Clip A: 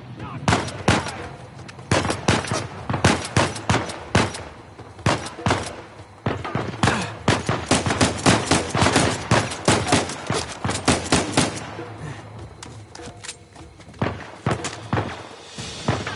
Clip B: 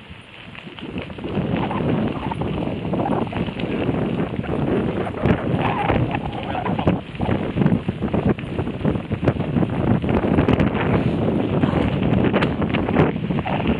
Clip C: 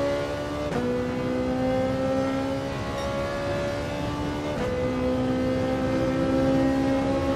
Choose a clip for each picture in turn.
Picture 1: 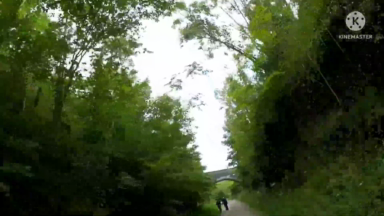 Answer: B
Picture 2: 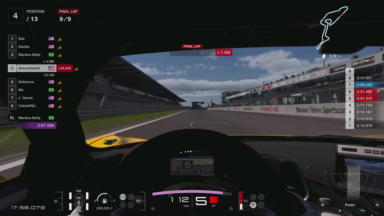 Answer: C